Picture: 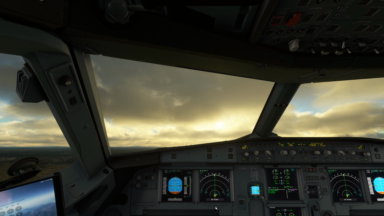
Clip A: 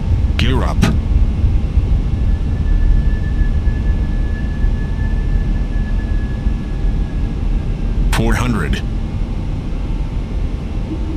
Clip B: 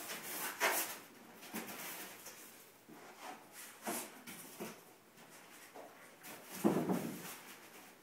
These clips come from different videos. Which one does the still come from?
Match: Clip A